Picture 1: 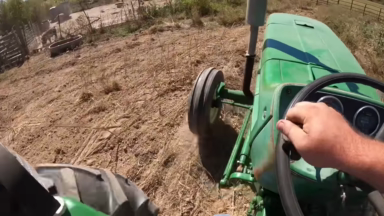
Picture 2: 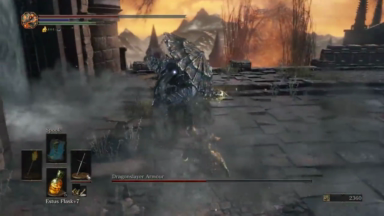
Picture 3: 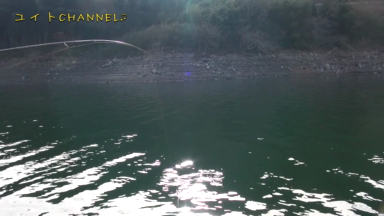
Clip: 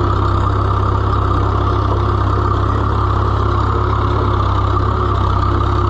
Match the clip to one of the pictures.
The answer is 1